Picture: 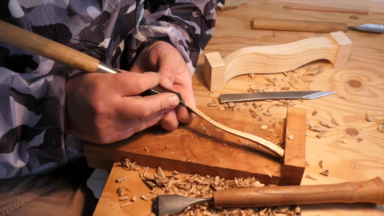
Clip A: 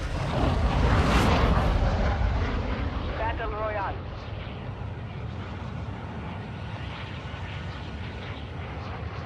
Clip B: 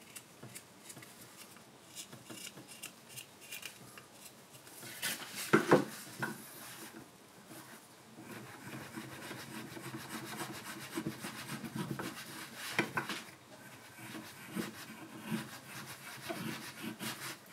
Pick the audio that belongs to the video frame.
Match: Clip B